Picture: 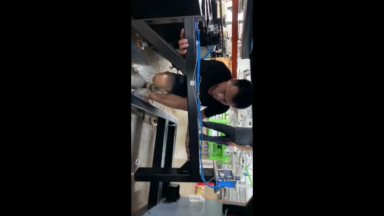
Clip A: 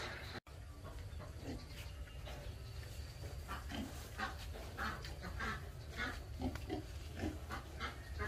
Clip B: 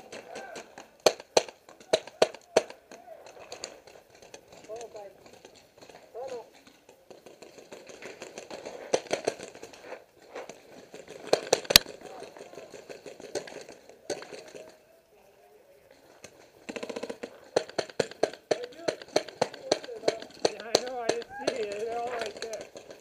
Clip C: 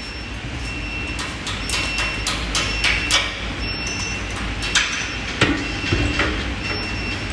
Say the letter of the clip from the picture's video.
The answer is C